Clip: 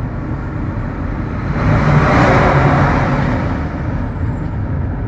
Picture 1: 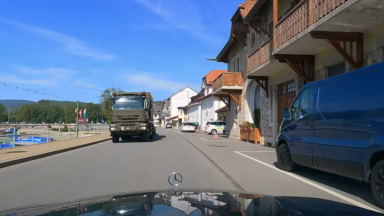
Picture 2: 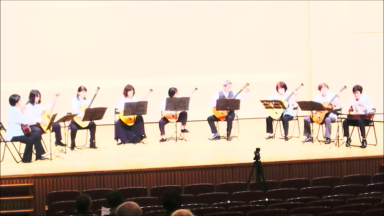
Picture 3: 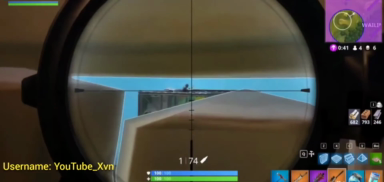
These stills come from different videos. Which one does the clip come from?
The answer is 1